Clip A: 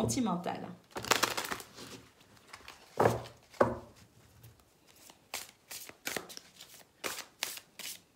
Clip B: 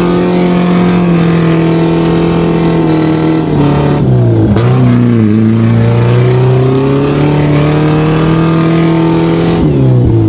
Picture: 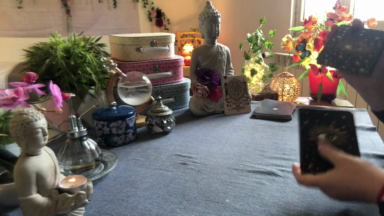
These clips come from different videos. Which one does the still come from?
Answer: A